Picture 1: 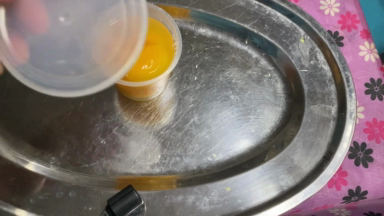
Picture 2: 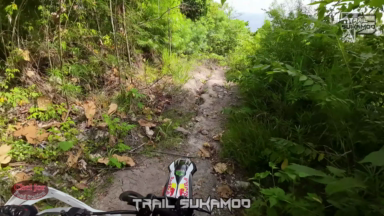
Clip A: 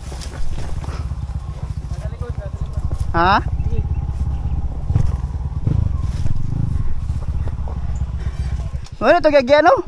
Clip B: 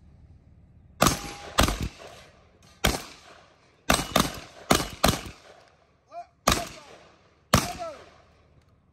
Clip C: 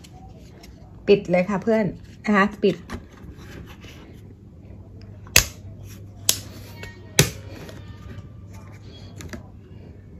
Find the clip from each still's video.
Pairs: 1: C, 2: A